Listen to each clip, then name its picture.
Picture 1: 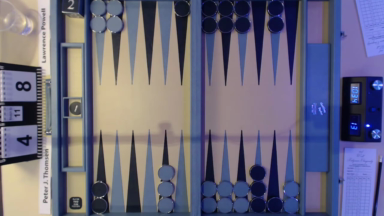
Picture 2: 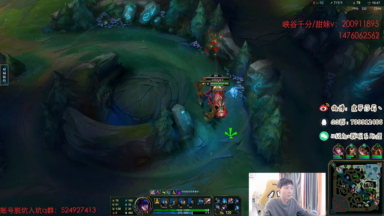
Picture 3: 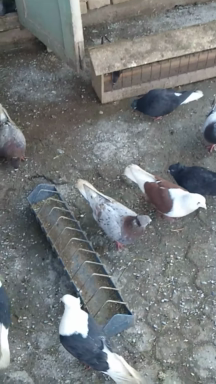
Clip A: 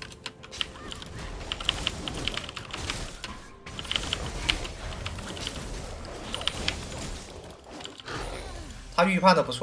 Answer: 2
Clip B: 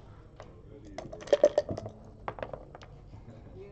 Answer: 1